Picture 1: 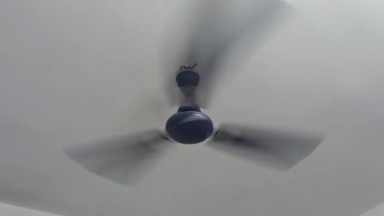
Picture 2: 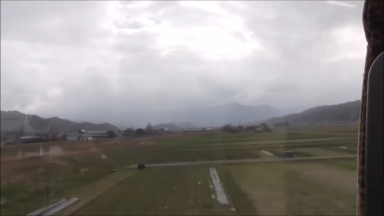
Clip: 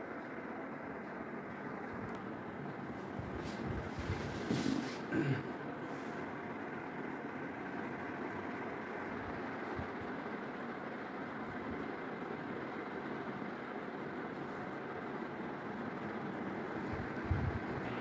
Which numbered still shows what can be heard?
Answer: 1